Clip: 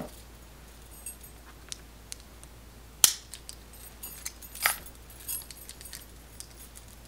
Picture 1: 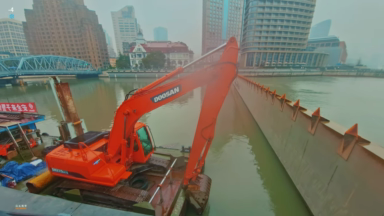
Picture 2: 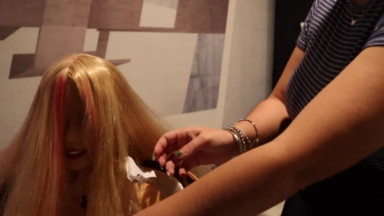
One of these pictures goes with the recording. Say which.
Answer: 2